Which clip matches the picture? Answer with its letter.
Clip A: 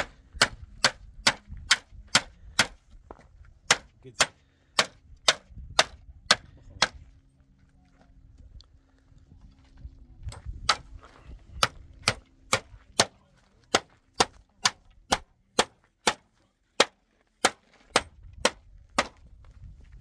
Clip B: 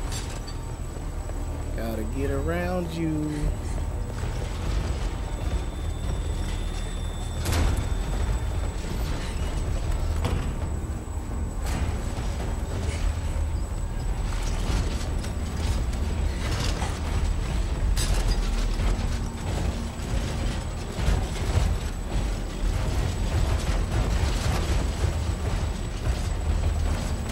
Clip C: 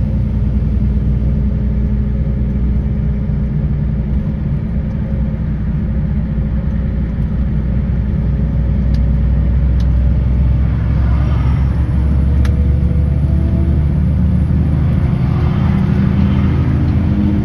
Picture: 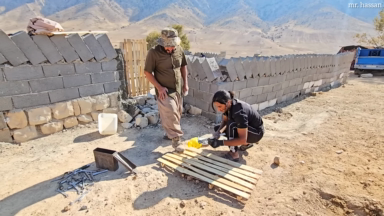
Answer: A